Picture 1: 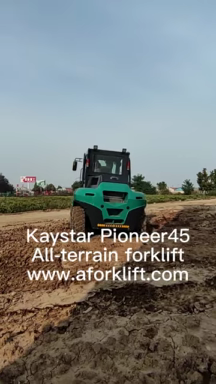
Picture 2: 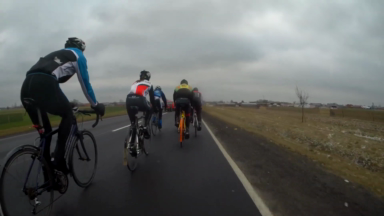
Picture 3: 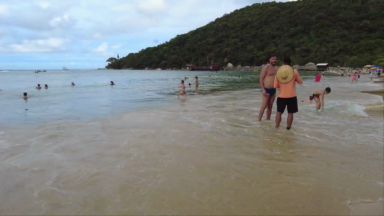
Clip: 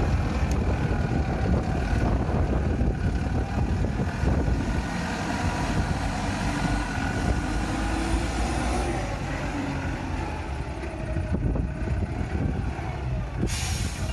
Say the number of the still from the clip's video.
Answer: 1